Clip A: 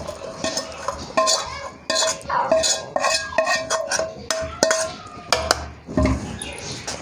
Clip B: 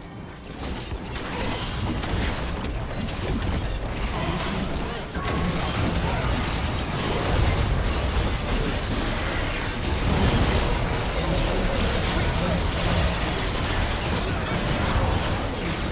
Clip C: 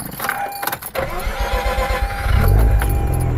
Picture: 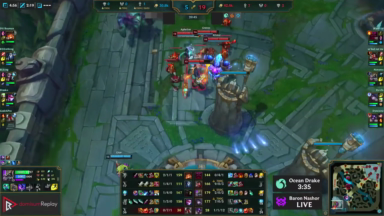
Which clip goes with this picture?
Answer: B